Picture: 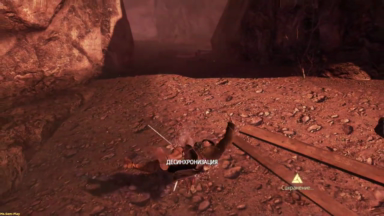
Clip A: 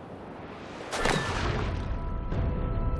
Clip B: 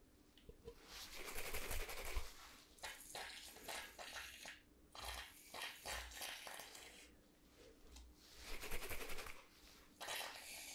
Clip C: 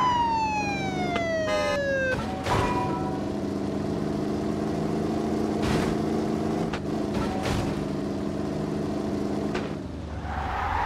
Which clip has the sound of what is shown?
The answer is A